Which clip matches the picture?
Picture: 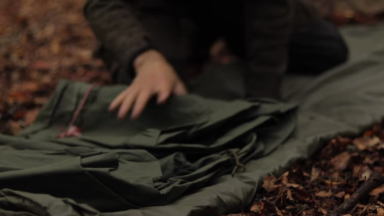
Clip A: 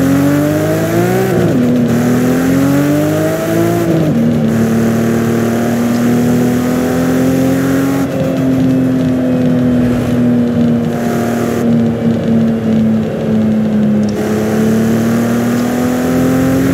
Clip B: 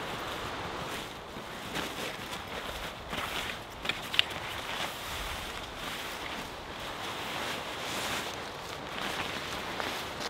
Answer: B